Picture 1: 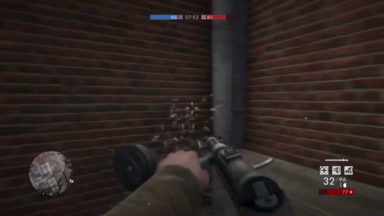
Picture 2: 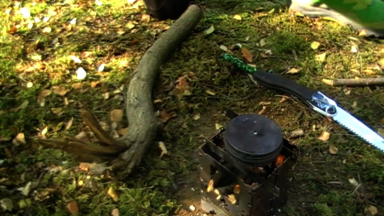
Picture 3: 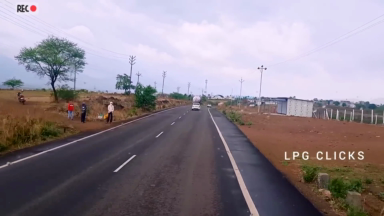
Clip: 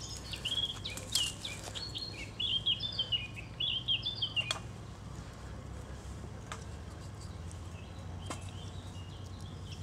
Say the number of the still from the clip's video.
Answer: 2